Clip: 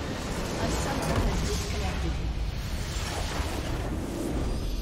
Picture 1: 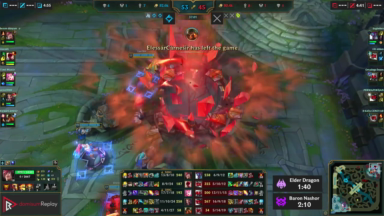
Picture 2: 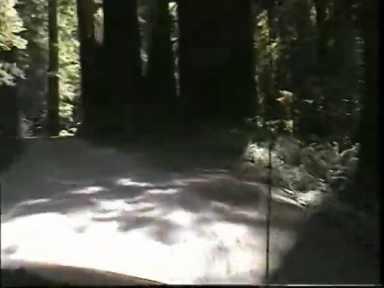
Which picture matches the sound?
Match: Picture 1